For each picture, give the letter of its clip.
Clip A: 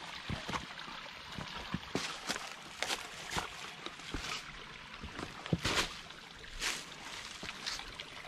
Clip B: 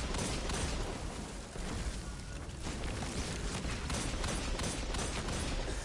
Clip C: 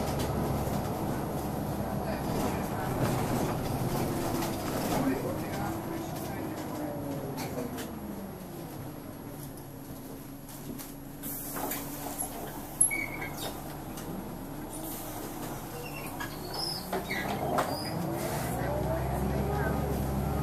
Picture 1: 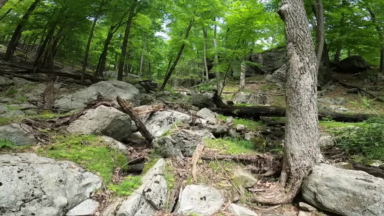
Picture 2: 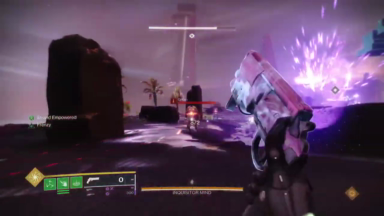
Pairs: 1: A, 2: B